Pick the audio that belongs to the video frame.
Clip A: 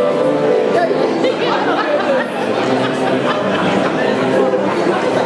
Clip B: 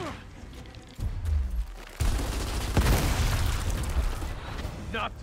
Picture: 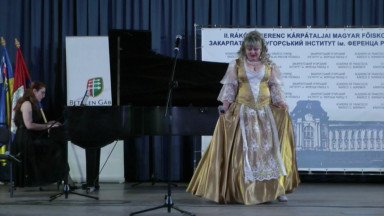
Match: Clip A